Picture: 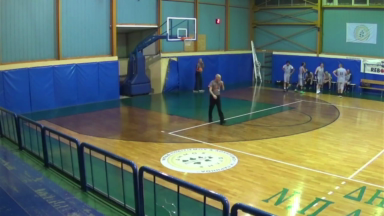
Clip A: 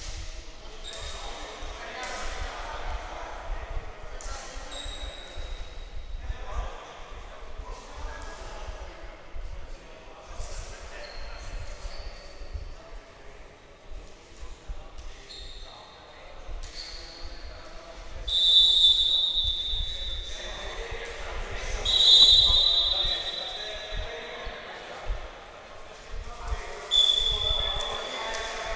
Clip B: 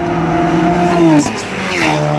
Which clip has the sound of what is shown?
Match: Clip A